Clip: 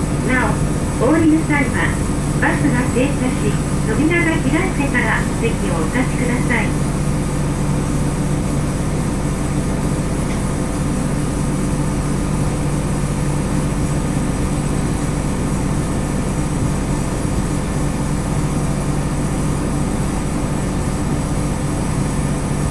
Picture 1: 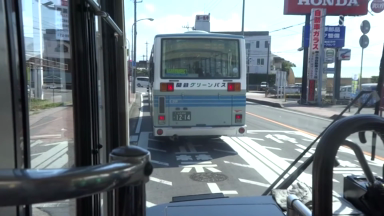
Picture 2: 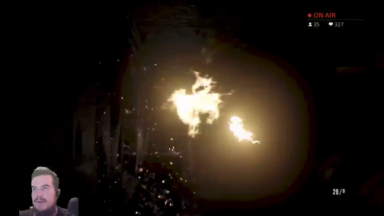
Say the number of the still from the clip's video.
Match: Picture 1